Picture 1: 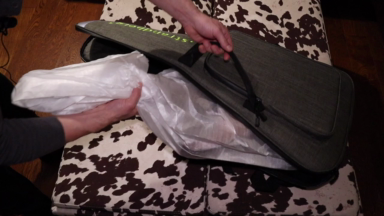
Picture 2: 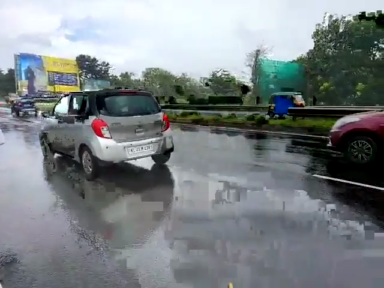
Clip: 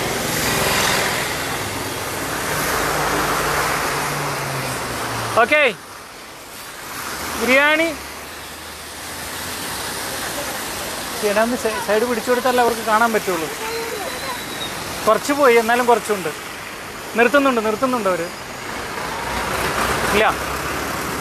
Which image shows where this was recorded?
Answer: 2